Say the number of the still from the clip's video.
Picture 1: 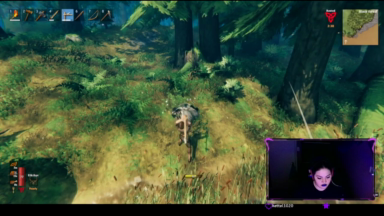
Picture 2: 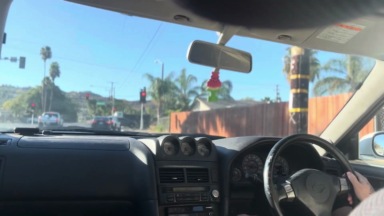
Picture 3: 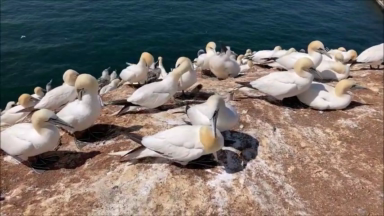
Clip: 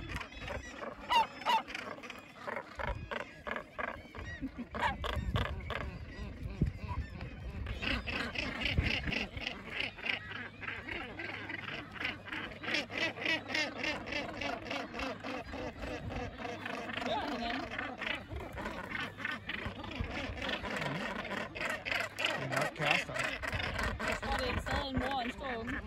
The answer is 3